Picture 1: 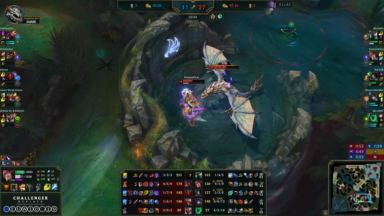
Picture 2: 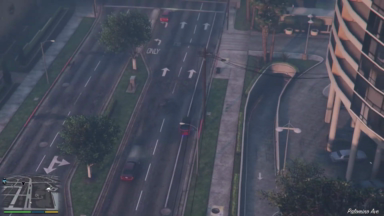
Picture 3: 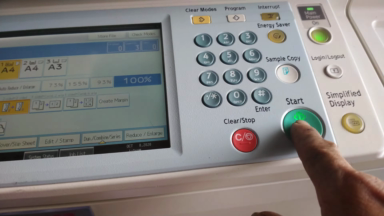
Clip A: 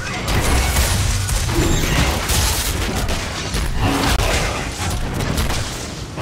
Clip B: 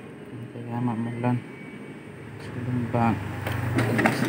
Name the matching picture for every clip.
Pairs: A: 1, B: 3